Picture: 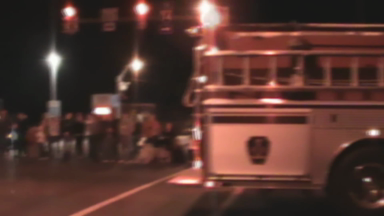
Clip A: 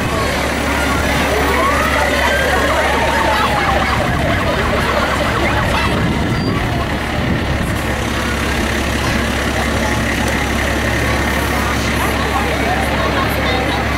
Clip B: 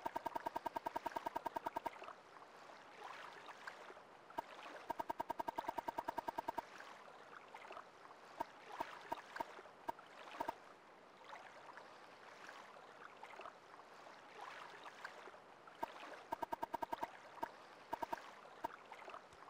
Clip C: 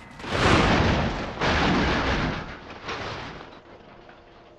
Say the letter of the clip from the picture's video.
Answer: A